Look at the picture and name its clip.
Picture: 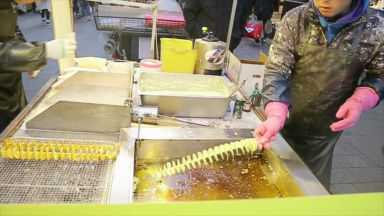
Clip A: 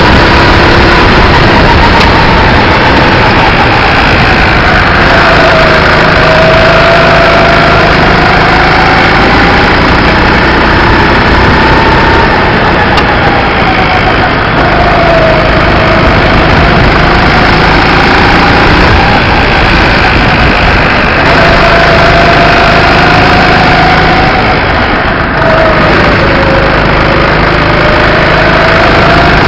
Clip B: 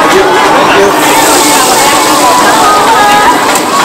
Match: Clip B